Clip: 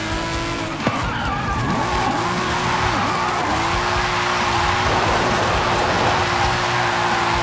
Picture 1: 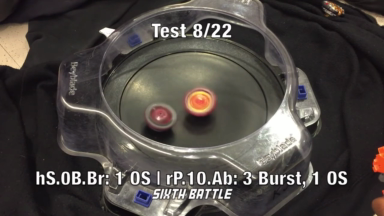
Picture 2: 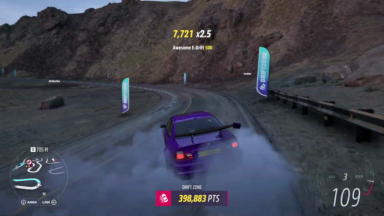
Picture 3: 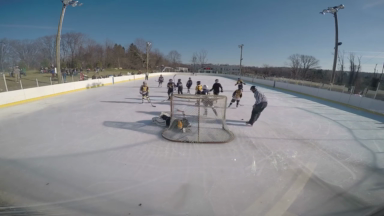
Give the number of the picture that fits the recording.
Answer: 2